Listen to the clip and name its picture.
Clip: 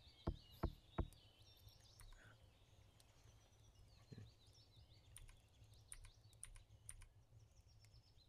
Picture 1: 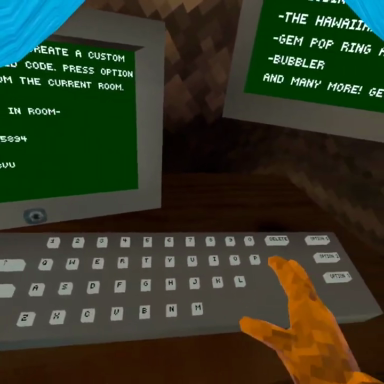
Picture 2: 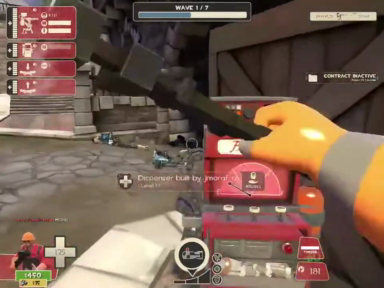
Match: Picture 1